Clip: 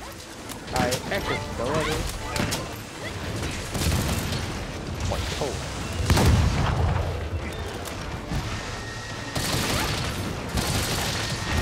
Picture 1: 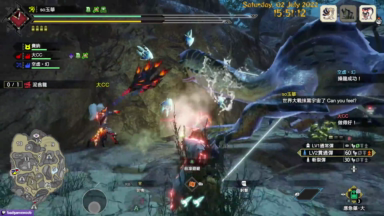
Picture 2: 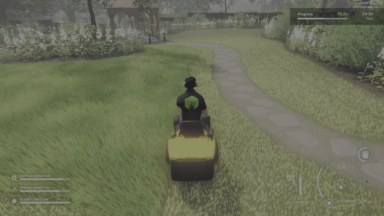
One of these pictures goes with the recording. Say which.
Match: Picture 1